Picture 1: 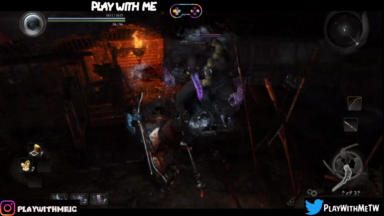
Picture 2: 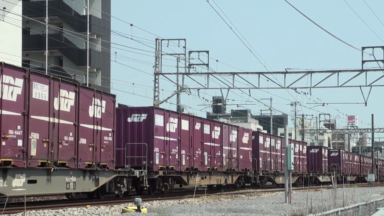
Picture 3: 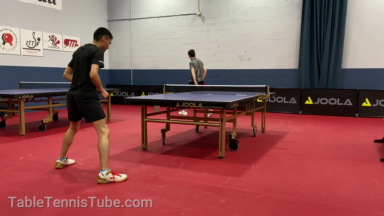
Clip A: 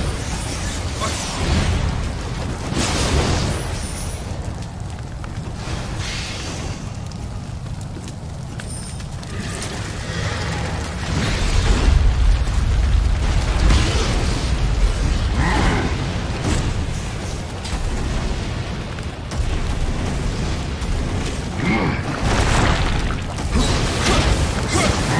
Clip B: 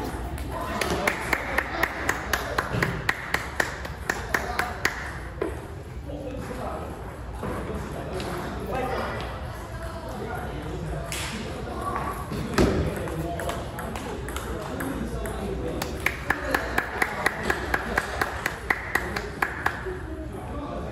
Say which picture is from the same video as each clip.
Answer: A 1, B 3